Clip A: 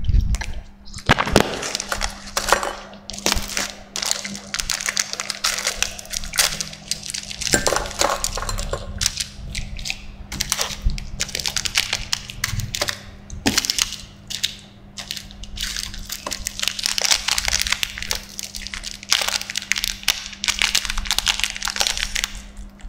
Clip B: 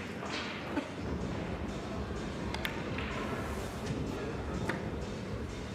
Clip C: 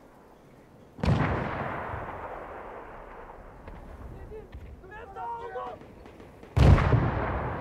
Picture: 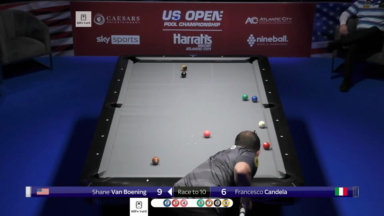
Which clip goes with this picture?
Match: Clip B